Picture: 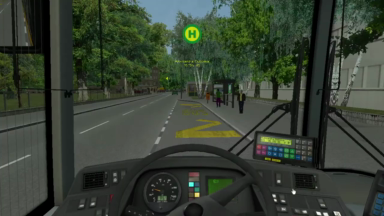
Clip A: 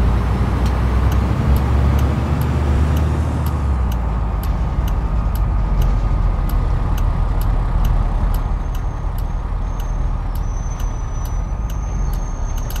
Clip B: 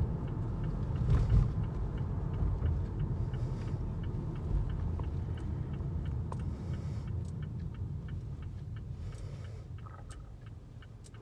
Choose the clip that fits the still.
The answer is A